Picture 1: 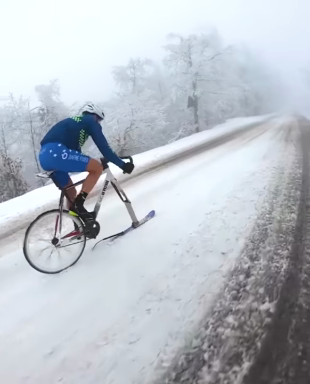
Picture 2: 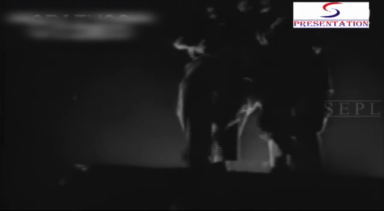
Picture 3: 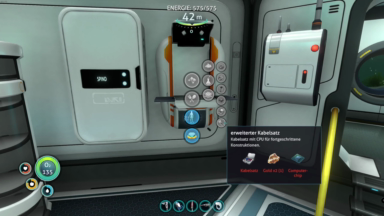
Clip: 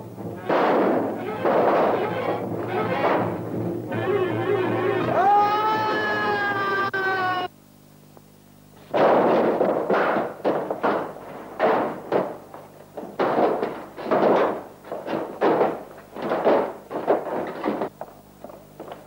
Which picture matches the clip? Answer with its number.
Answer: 2